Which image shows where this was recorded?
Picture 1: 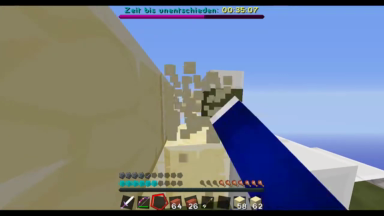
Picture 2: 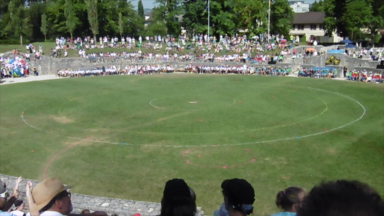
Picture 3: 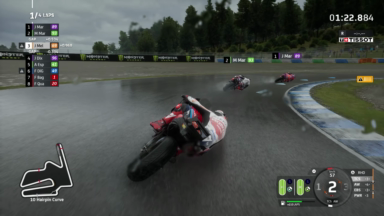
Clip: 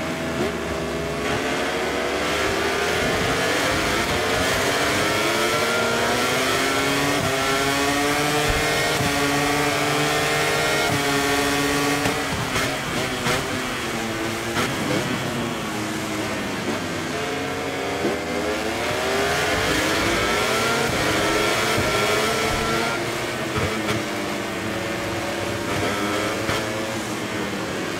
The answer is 3